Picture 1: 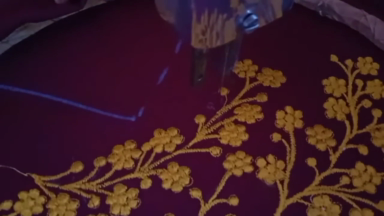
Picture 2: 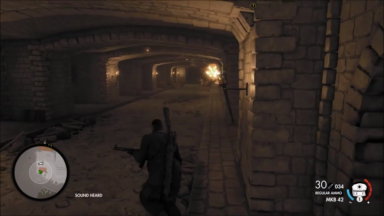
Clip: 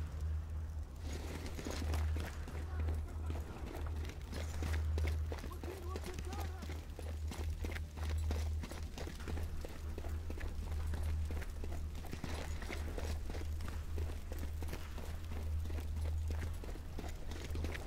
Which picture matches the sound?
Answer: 2